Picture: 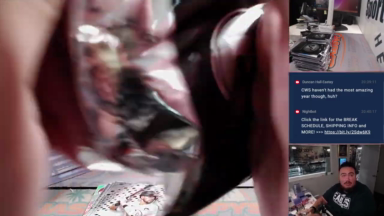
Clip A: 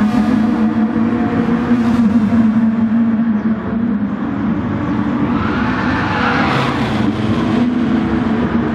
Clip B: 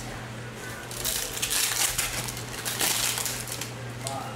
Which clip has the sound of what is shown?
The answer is B